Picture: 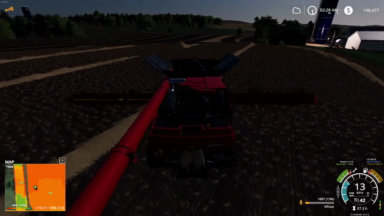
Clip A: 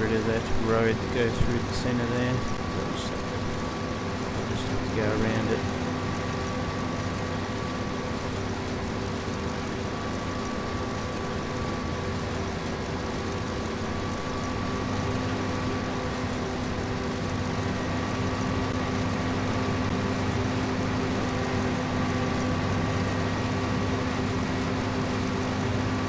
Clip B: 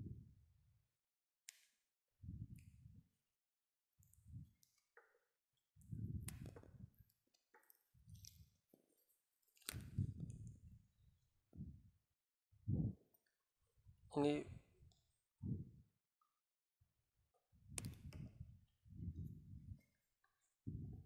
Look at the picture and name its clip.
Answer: A